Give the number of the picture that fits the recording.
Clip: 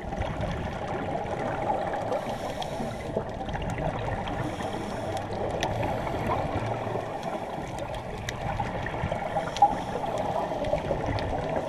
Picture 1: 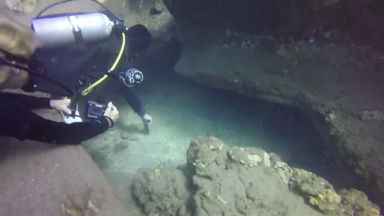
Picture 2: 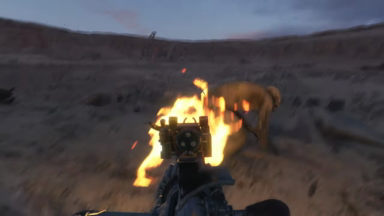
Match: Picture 1